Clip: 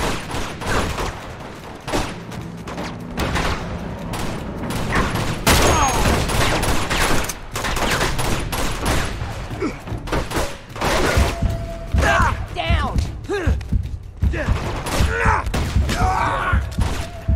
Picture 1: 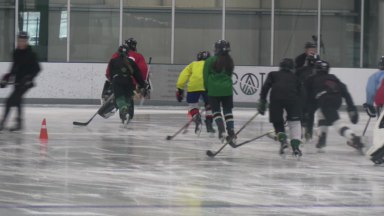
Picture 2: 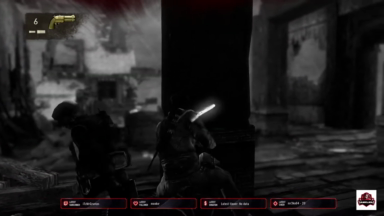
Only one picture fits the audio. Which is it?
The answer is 2